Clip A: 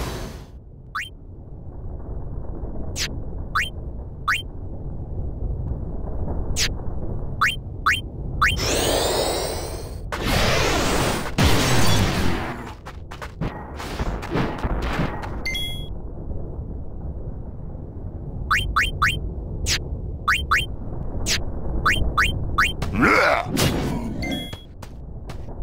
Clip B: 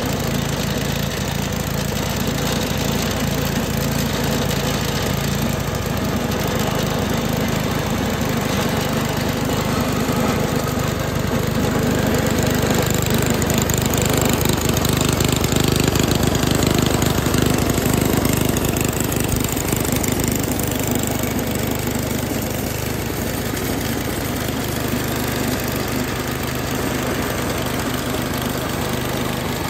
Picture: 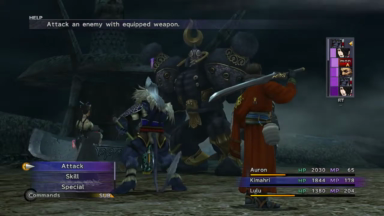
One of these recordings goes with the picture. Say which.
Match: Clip A